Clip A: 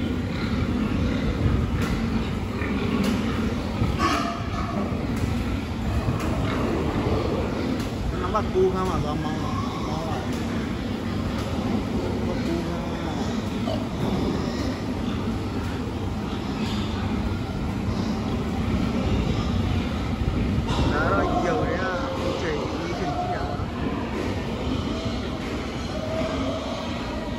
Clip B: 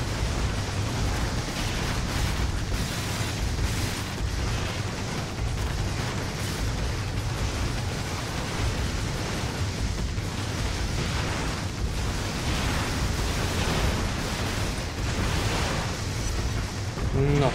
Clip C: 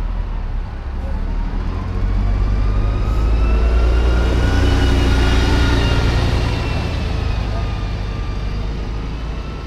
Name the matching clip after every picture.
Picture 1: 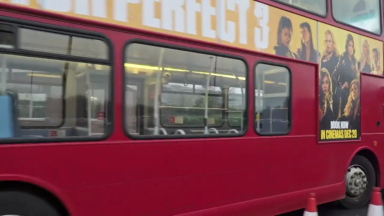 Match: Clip C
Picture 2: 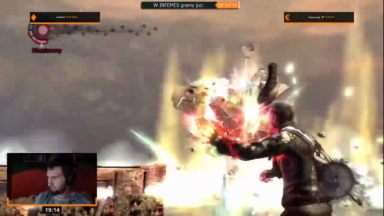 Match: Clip B